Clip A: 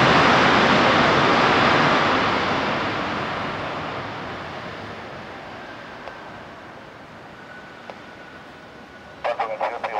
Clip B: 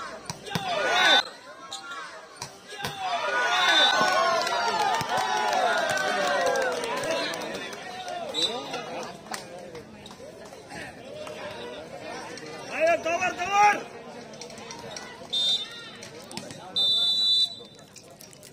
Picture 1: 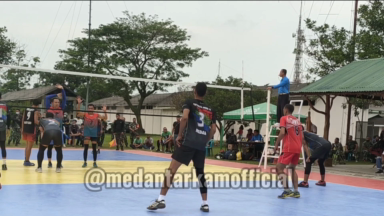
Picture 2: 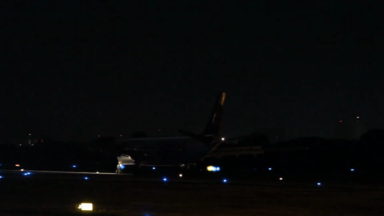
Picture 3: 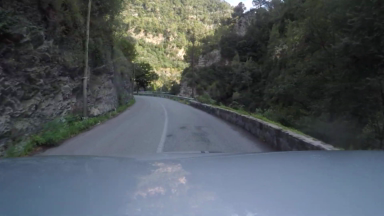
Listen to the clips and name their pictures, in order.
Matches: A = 2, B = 1